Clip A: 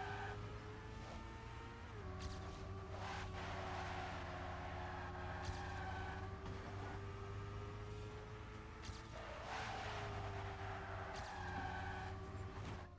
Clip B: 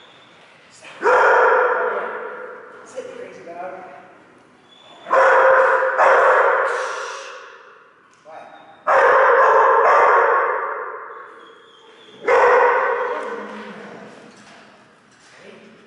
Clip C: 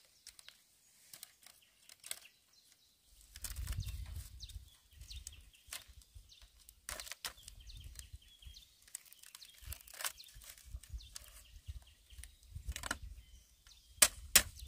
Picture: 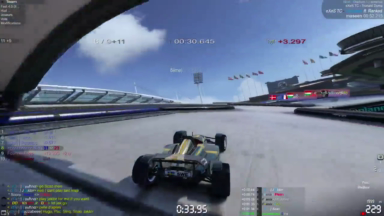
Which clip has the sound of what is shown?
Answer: A